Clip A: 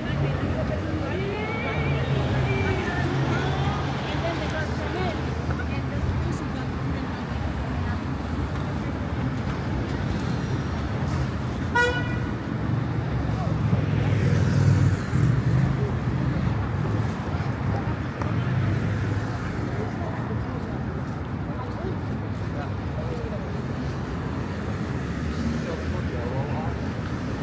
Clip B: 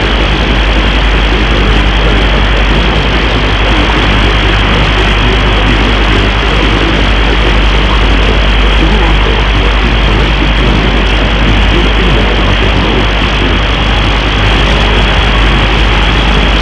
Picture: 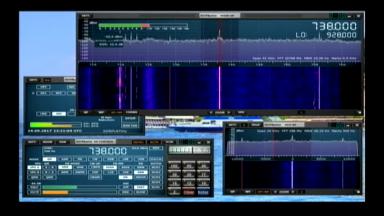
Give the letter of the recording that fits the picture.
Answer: B